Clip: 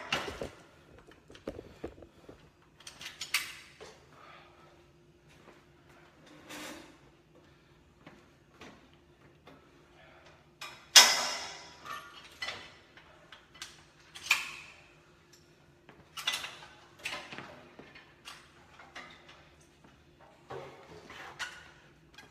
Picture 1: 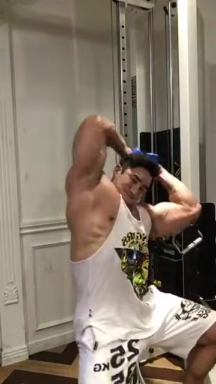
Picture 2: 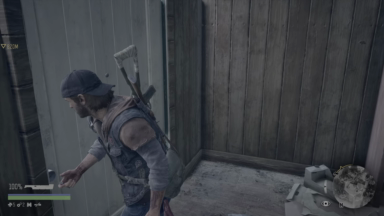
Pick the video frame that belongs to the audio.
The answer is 1